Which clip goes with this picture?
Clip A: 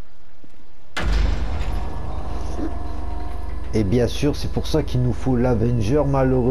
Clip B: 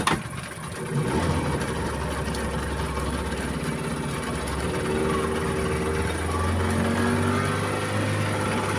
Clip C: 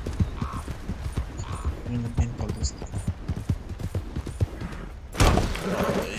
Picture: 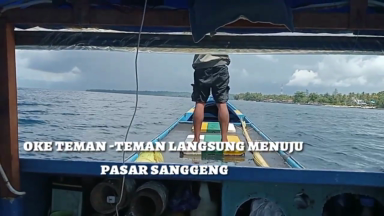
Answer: B